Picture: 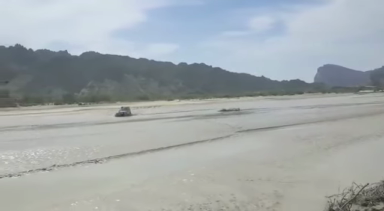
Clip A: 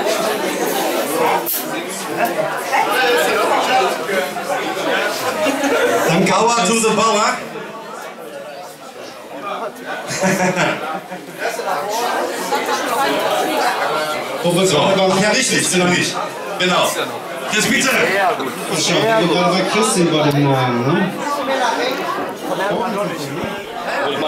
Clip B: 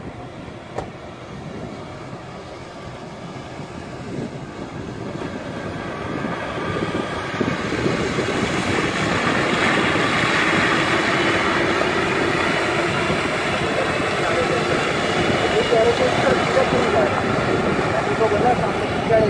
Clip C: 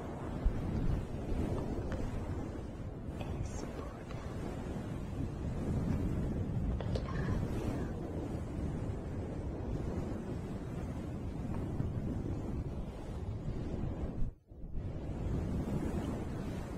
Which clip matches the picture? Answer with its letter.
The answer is B